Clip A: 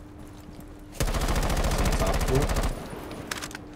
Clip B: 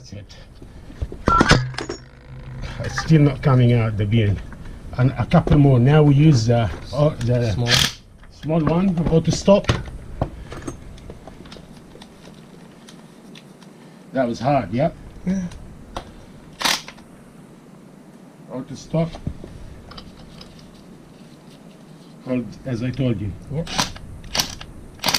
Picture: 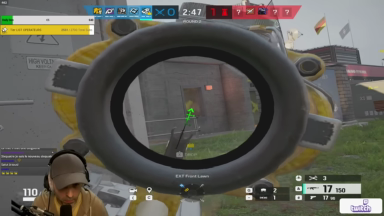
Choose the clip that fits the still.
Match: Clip A